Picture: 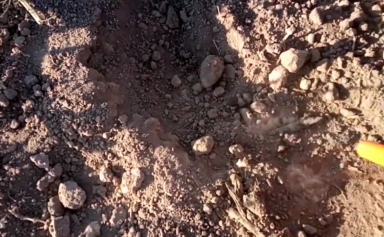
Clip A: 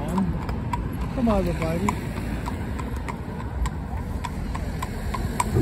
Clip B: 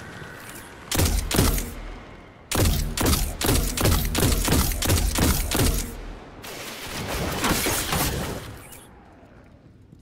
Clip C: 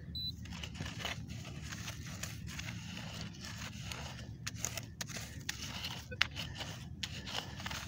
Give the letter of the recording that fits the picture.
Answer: C